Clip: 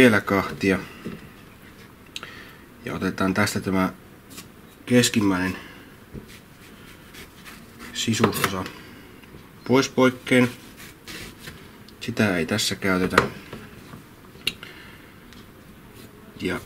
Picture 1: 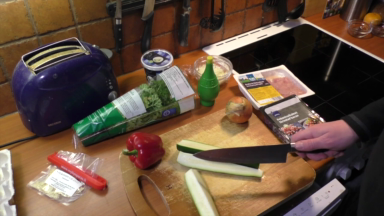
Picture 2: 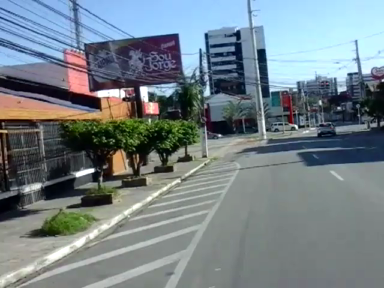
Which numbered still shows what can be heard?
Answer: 1